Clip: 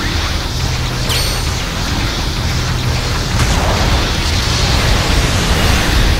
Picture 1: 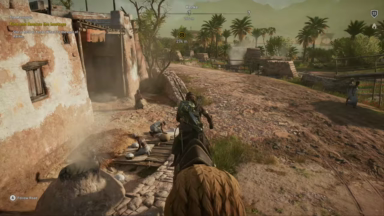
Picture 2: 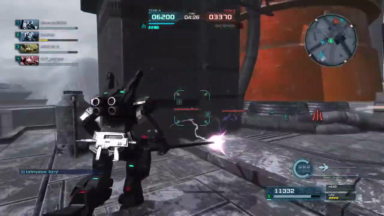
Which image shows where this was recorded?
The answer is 2